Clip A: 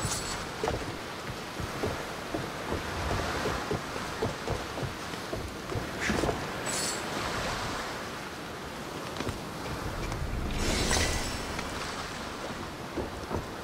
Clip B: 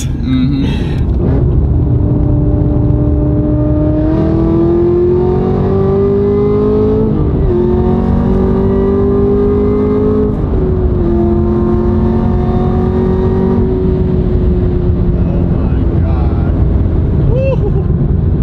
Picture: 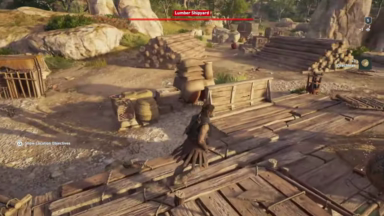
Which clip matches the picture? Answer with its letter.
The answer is A